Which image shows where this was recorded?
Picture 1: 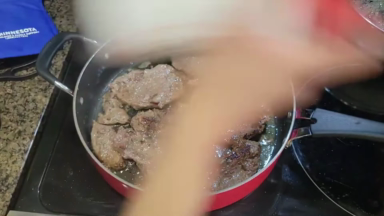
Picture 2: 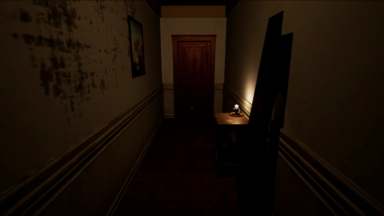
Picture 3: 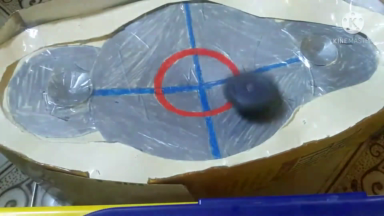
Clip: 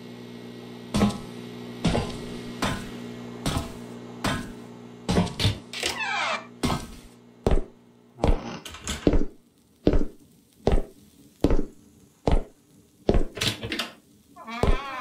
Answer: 2